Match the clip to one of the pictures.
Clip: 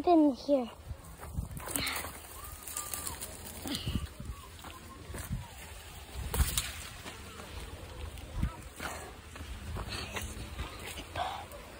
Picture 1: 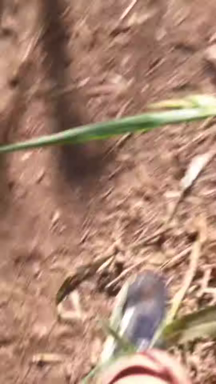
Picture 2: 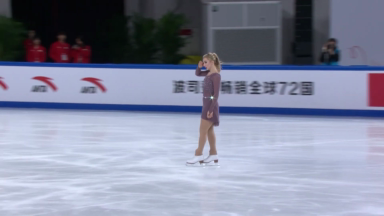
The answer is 1